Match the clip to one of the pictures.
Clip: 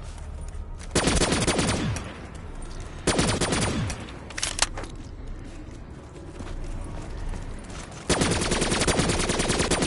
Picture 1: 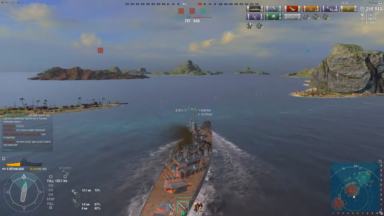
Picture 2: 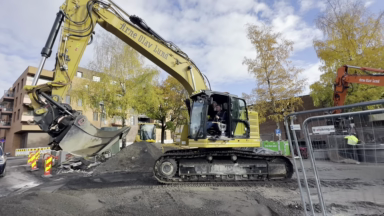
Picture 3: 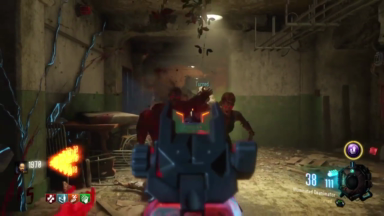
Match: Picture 3